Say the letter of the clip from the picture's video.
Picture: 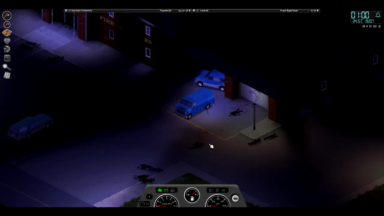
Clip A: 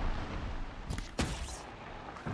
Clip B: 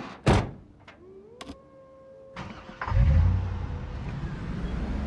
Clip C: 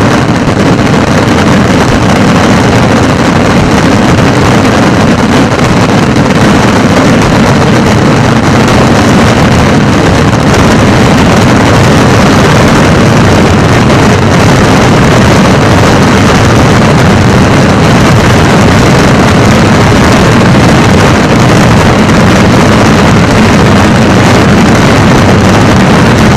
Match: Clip B